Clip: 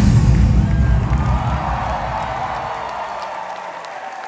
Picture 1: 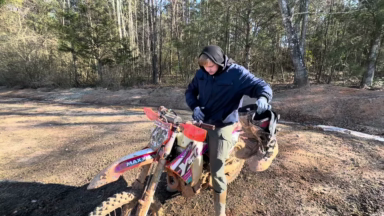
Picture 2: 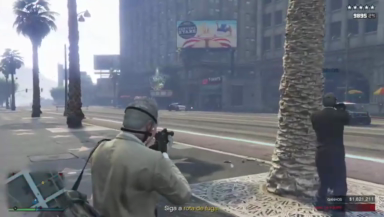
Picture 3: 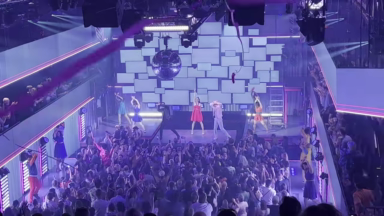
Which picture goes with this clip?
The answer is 3